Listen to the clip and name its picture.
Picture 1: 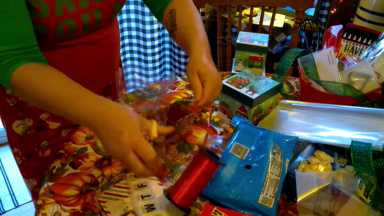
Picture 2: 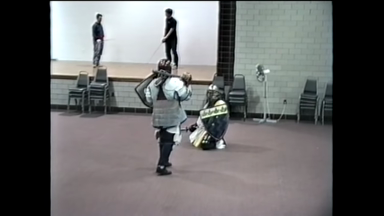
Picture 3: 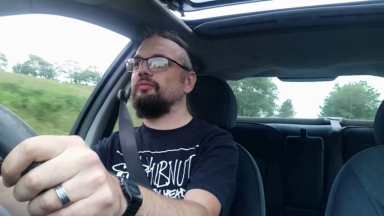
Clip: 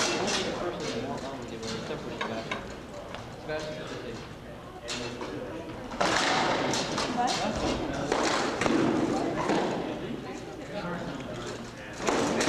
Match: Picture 2